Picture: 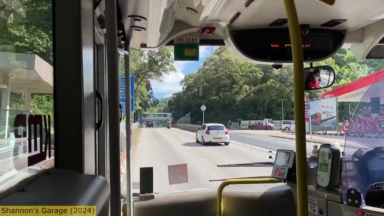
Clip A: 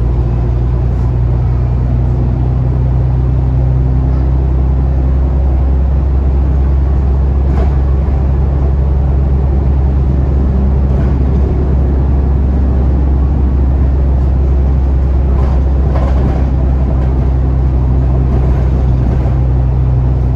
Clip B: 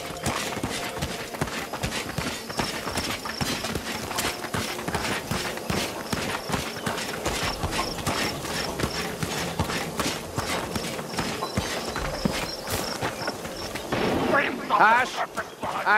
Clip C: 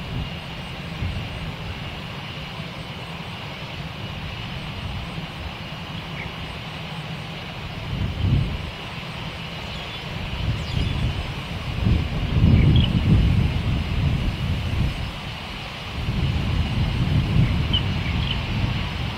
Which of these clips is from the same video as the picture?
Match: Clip A